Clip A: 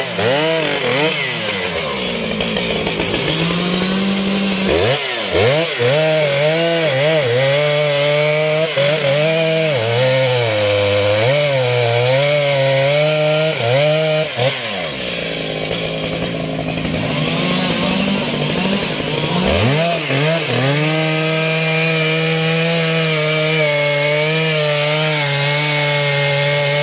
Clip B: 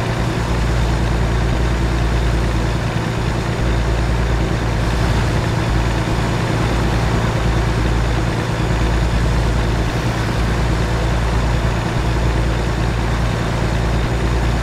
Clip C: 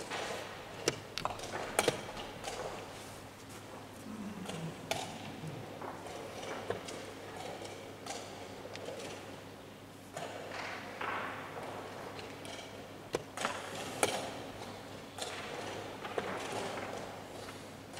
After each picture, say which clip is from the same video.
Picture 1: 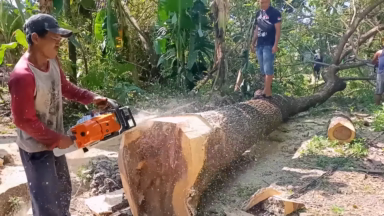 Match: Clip A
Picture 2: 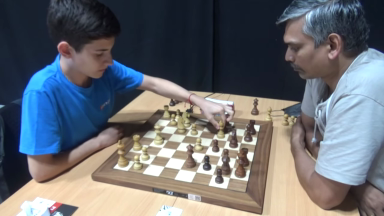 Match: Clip C